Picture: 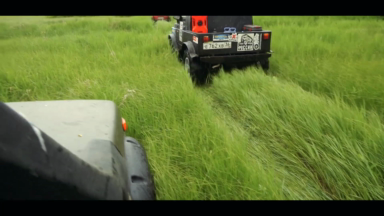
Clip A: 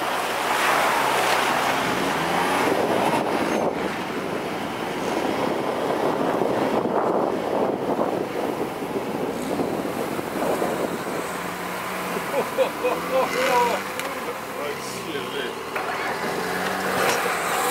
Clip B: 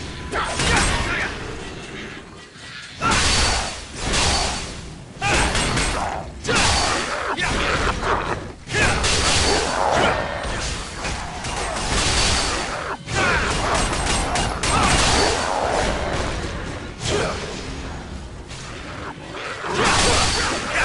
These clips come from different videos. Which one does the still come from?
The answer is A